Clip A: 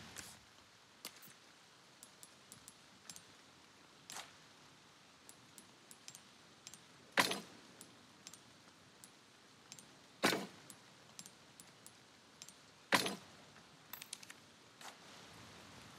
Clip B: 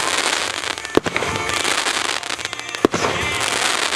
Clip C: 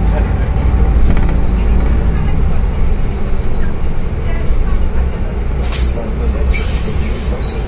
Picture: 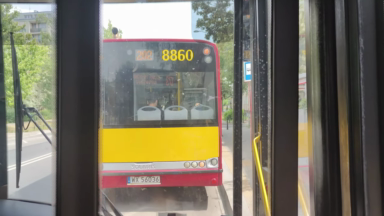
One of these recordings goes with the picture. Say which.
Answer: C